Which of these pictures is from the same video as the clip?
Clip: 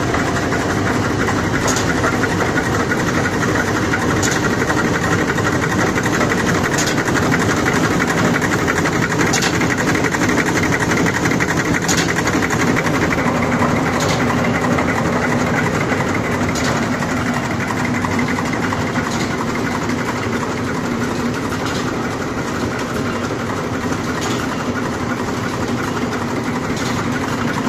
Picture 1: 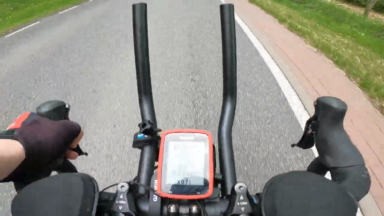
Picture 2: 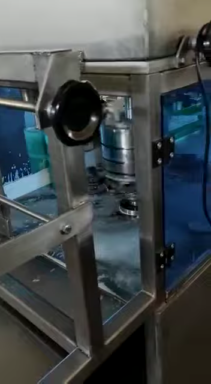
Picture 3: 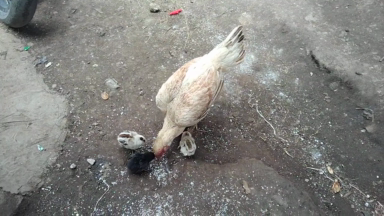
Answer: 2